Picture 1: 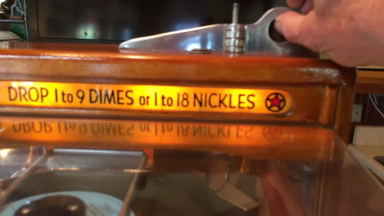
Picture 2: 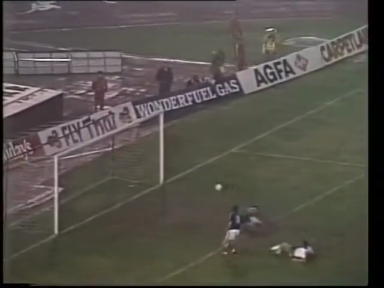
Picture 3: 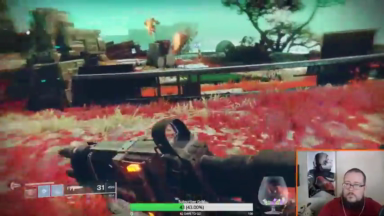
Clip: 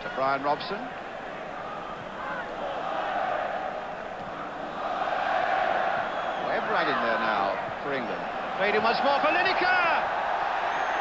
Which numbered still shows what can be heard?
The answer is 2